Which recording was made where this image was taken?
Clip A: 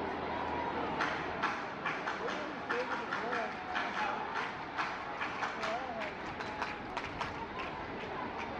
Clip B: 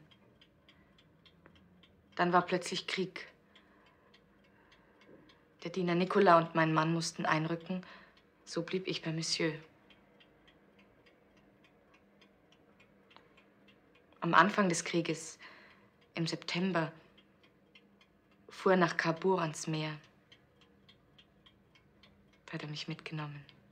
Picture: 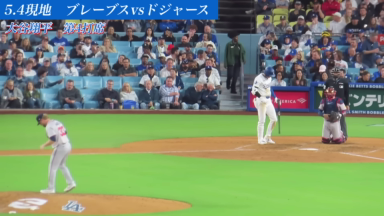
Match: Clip A